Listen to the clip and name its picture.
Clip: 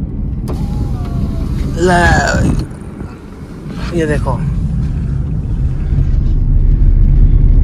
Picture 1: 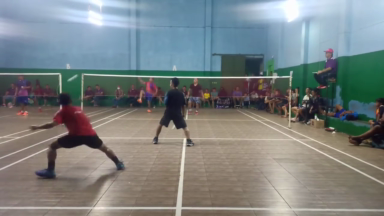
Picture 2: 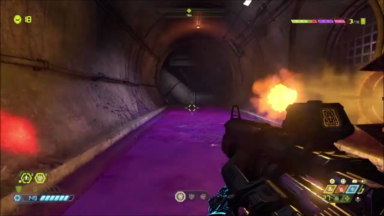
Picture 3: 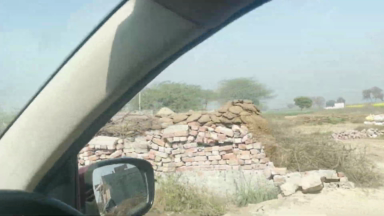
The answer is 3